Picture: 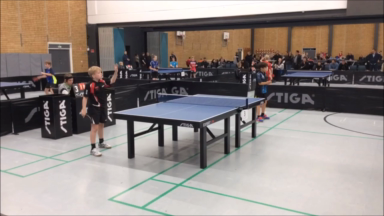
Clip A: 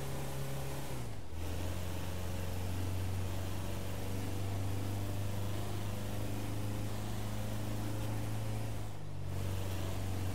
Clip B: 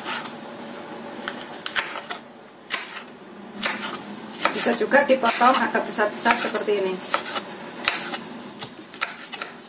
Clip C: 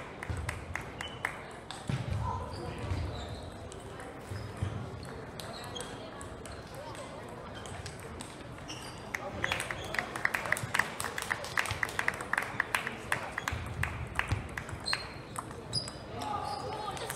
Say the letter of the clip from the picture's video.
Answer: C